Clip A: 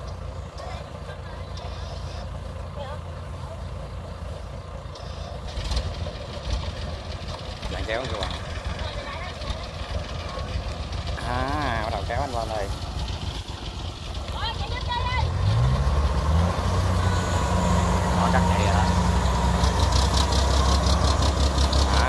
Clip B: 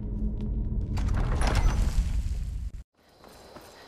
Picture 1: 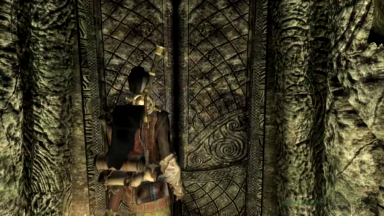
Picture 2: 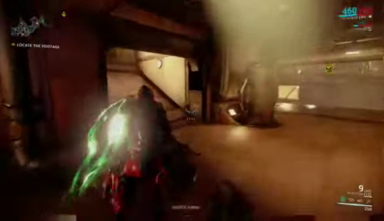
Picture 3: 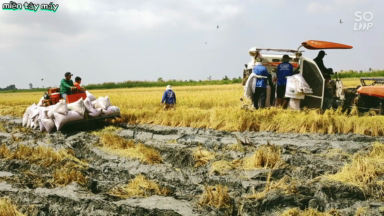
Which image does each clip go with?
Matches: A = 3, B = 1